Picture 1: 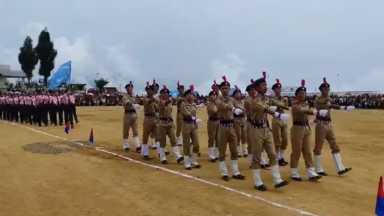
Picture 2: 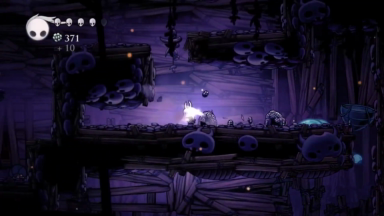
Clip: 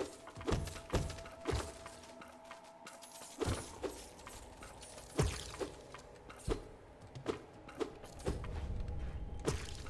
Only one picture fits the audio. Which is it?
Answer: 2